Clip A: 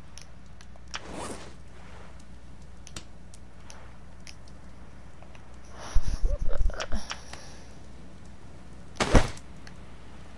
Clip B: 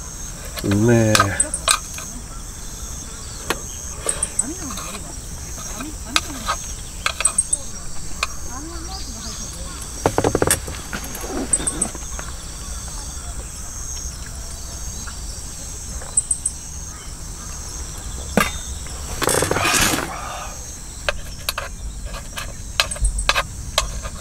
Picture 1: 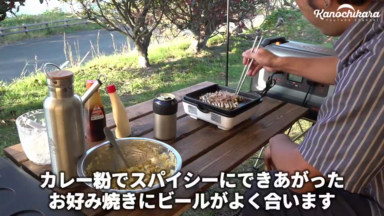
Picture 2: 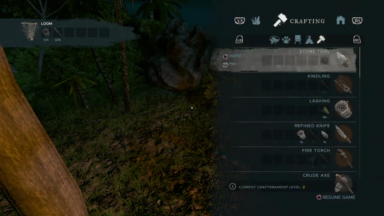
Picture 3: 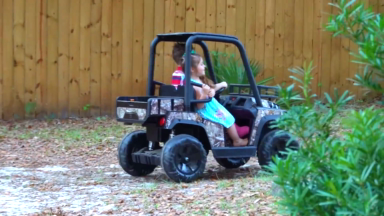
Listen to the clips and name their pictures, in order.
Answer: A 2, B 1